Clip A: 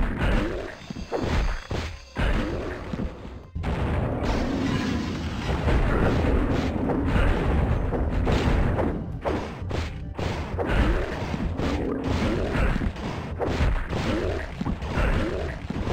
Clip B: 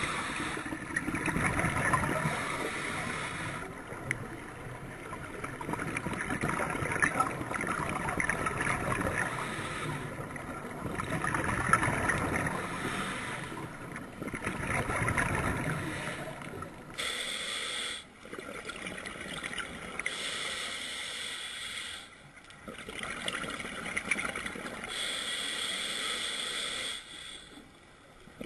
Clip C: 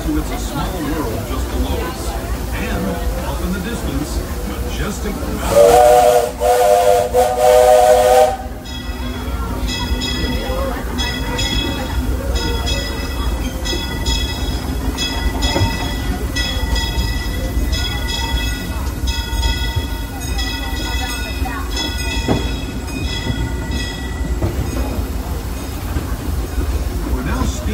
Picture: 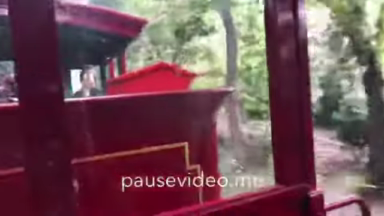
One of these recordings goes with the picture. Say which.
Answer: C